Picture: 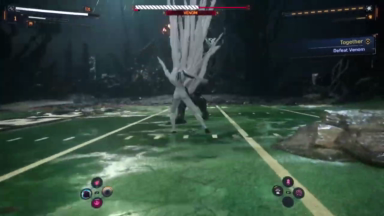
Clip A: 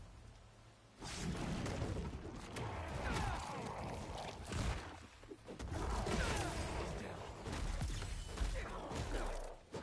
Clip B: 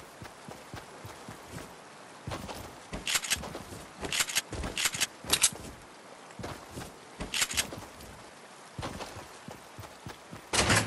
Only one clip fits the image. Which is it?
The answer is A